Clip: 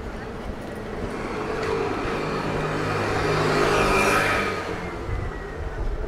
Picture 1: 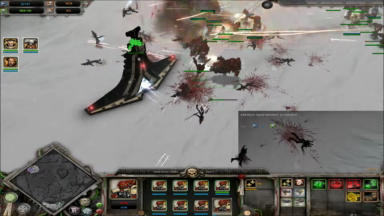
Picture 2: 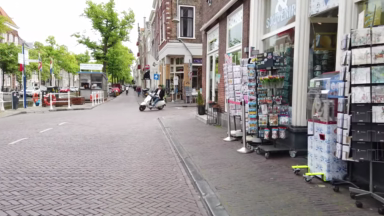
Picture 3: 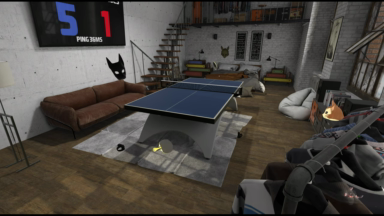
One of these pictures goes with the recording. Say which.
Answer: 2